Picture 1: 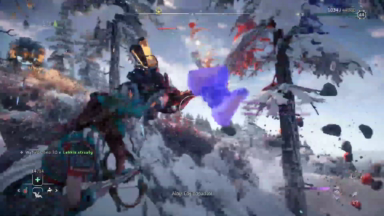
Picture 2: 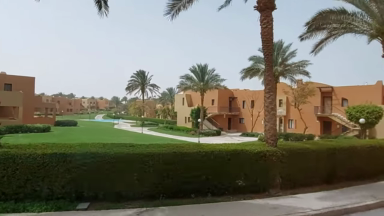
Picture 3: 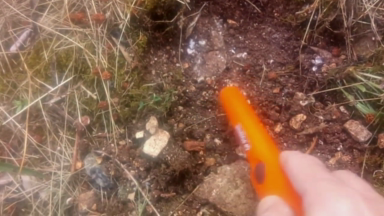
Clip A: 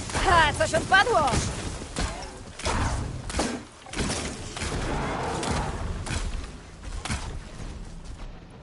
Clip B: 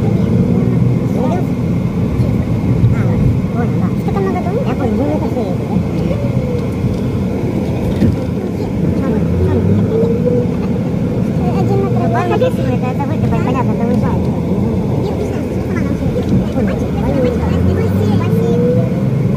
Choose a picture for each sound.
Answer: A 1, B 2